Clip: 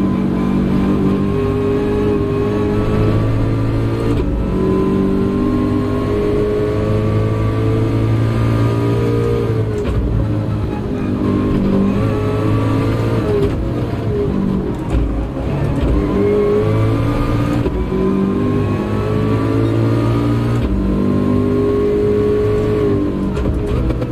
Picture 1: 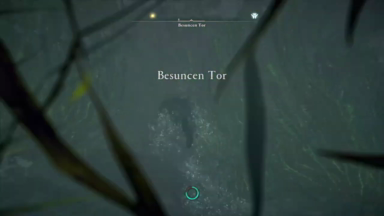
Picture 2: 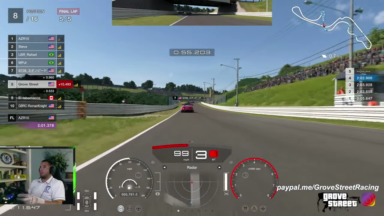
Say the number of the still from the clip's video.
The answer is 2